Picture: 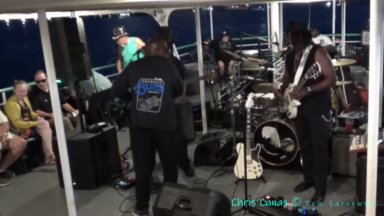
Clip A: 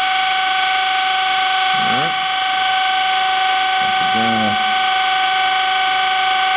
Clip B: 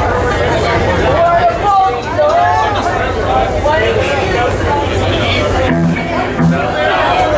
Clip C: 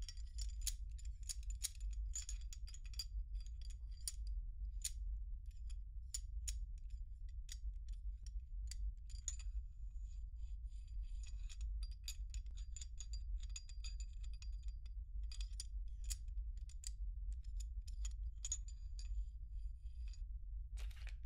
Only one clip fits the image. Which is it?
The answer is B